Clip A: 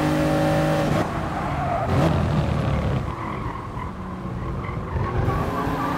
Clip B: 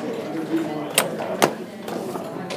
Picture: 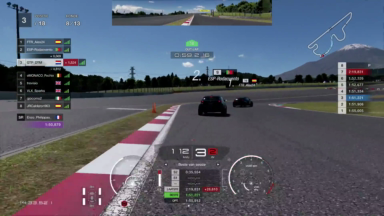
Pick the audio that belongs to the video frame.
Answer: A